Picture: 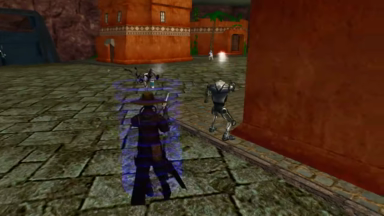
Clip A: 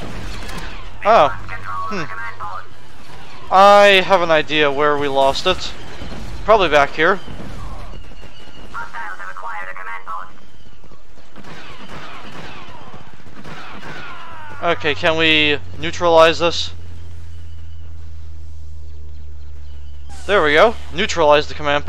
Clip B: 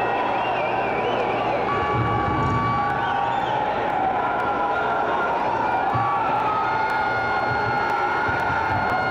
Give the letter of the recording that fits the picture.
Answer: A